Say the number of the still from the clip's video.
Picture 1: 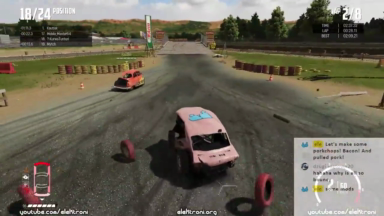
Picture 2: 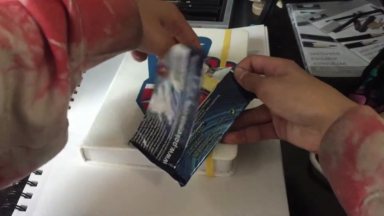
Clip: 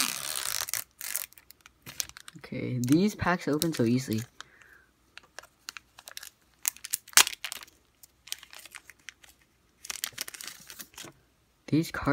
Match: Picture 2